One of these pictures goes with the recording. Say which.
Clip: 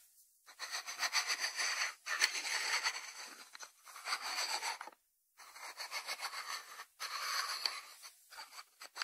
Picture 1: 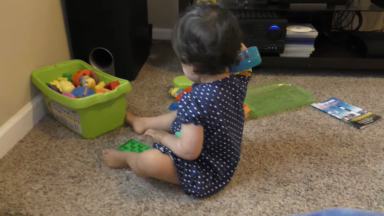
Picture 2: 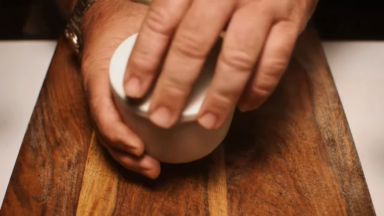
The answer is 2